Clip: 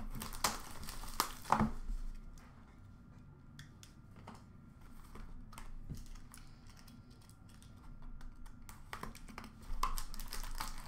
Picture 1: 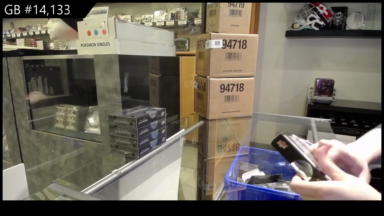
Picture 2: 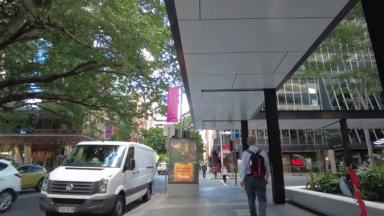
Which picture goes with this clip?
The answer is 1